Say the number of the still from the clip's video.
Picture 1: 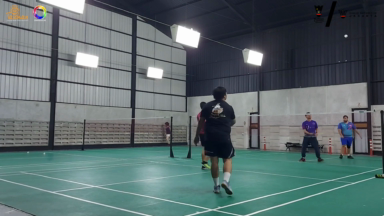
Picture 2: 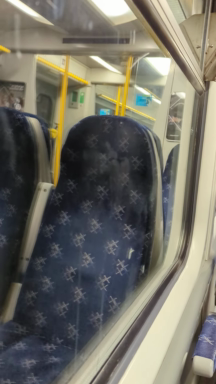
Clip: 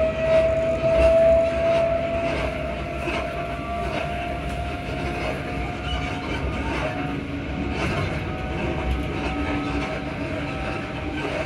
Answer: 2